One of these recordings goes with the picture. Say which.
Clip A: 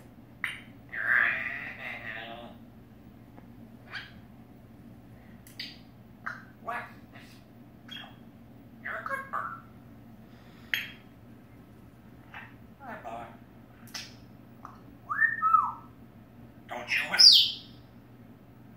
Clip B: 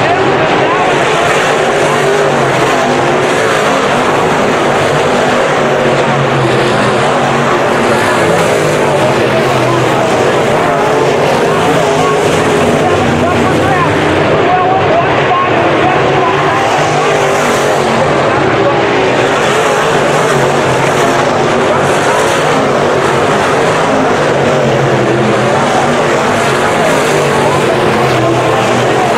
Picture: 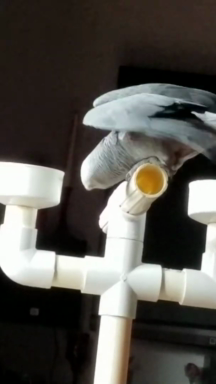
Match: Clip A